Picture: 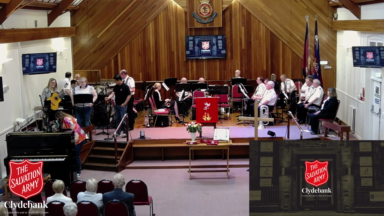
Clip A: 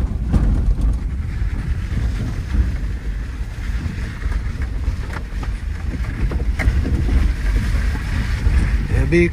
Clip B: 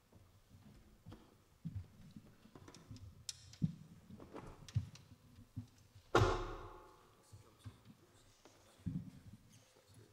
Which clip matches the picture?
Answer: B